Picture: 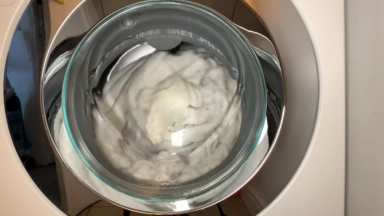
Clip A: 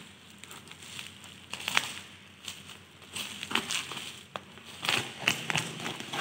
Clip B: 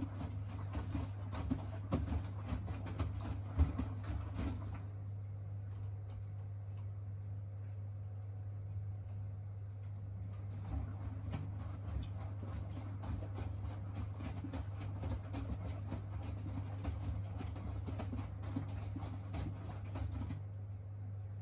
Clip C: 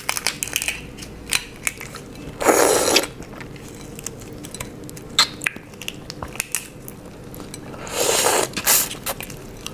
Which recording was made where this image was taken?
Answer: B